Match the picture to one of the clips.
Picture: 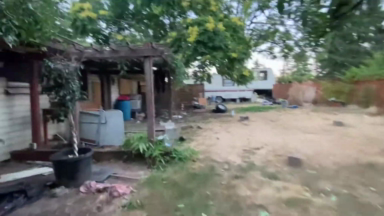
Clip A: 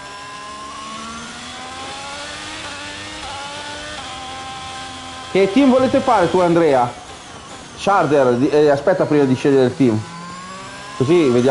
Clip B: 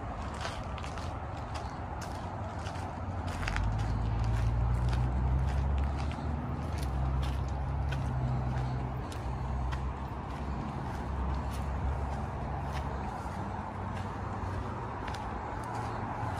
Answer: B